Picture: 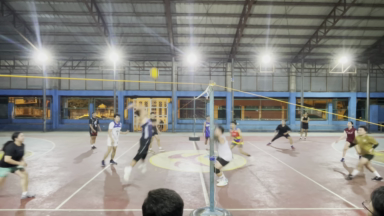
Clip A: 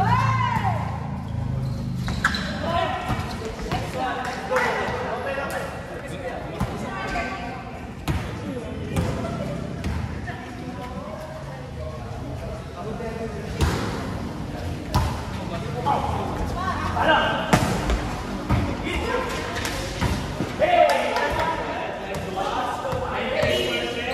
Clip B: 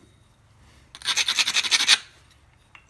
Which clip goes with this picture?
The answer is A